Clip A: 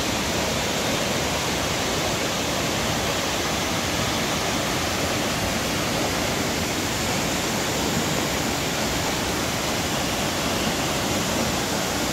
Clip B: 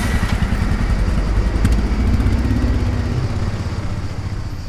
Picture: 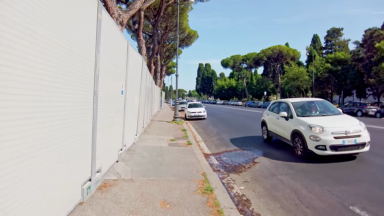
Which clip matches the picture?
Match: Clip B